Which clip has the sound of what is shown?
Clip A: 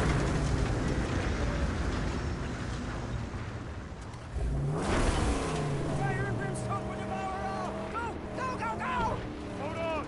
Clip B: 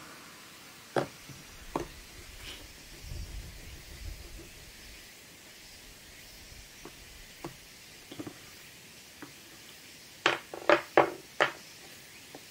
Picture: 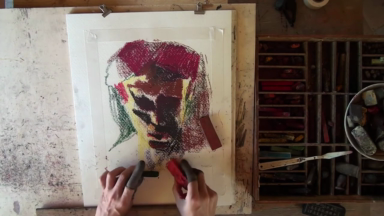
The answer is B